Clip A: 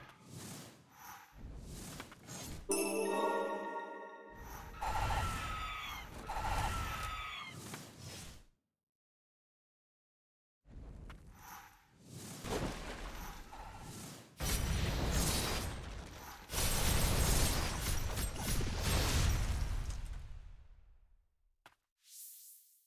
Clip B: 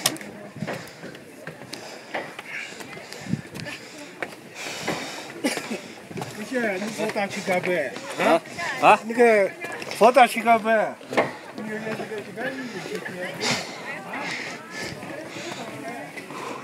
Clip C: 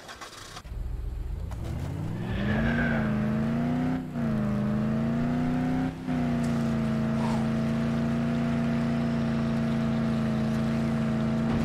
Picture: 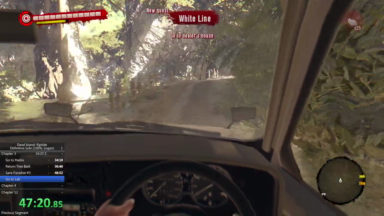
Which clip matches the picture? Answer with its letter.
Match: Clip C